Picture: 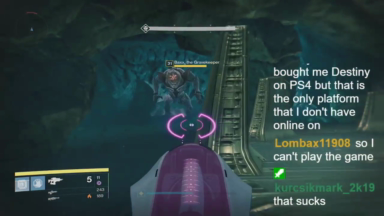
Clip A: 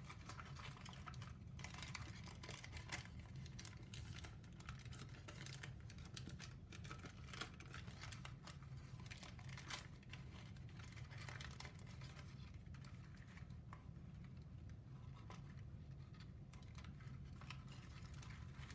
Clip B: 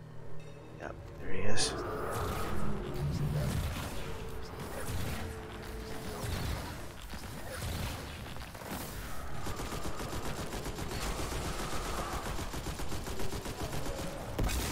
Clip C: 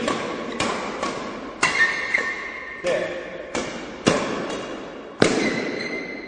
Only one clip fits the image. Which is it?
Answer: B